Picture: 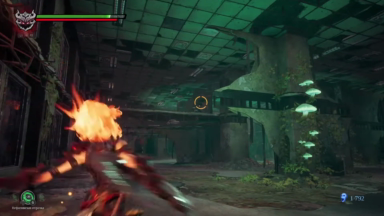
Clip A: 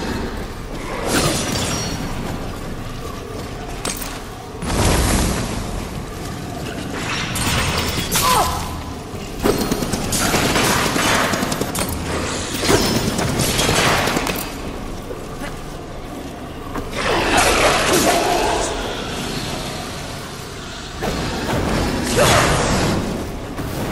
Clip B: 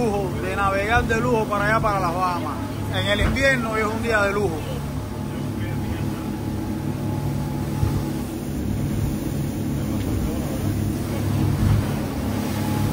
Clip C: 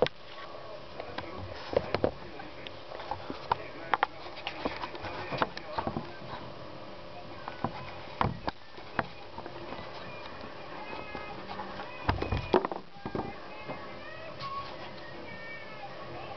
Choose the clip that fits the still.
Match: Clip A